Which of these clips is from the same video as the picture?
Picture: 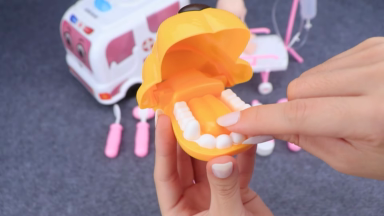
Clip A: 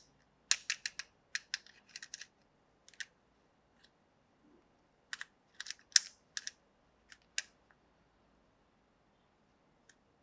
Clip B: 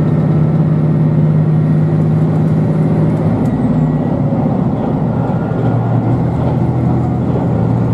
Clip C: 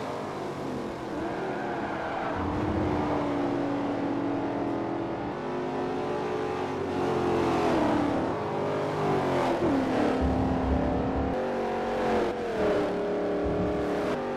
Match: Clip A